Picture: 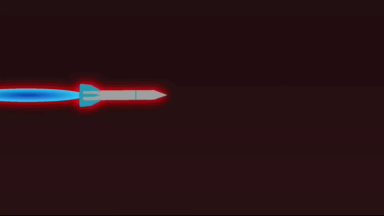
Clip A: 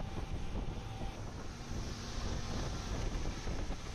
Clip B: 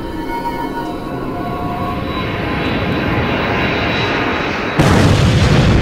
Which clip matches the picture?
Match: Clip B